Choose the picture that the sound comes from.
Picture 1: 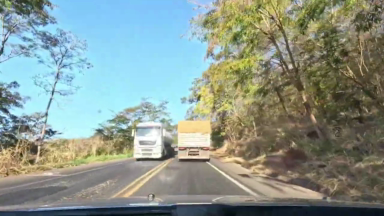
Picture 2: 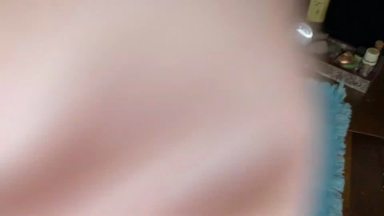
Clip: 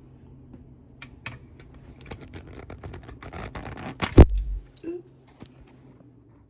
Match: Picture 2